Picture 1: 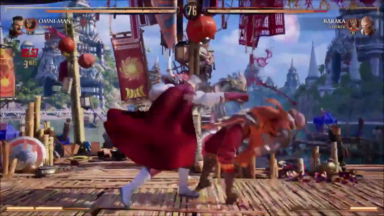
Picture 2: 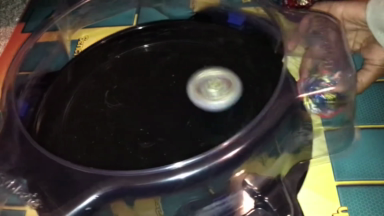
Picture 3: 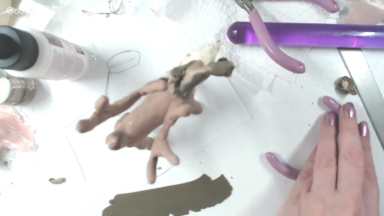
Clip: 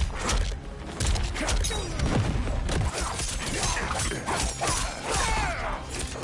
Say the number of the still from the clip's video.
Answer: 1